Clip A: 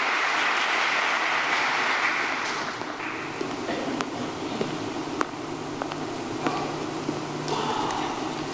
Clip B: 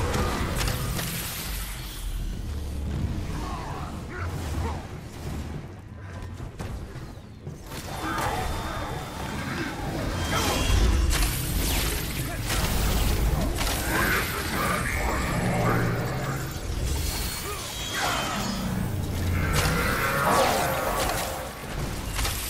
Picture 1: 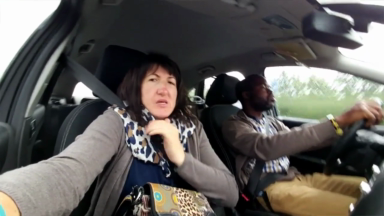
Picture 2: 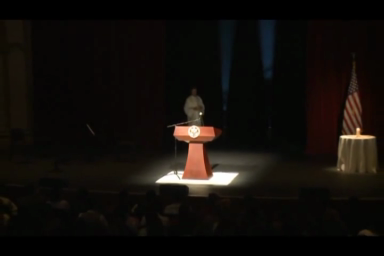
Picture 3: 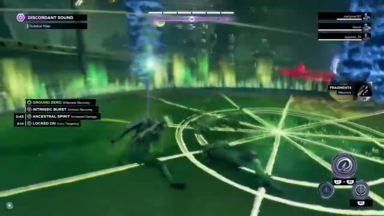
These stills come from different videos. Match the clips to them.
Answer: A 2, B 3